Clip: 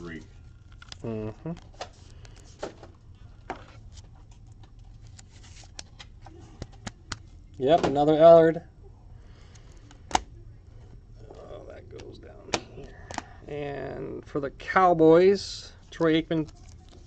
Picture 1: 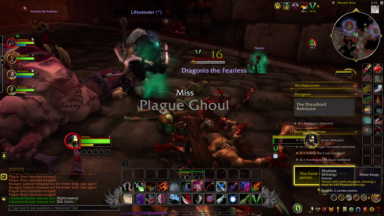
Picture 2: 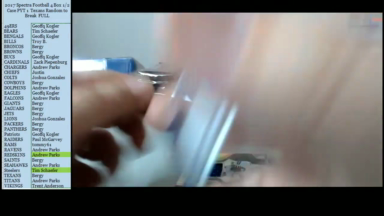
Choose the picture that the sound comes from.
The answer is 2